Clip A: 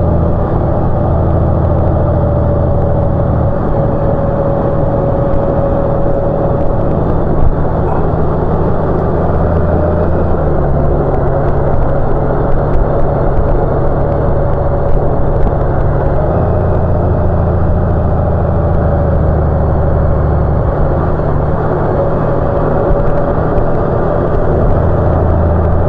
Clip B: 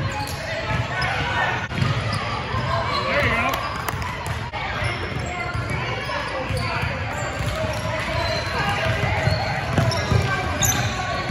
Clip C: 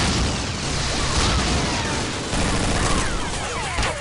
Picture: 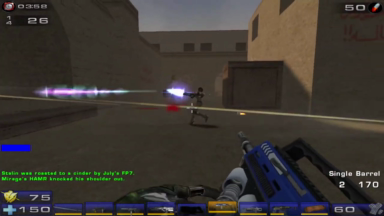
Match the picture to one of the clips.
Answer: C